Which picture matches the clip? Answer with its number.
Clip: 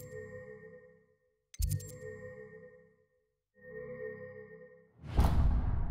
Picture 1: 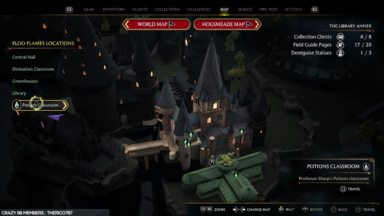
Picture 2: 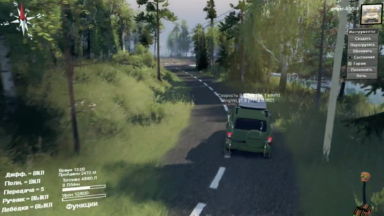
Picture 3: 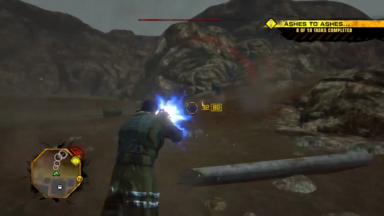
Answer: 1